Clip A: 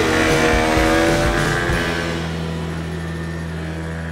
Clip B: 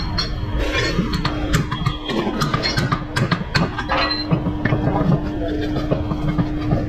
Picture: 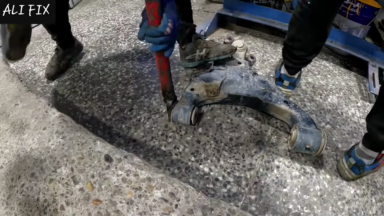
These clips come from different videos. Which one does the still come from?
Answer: B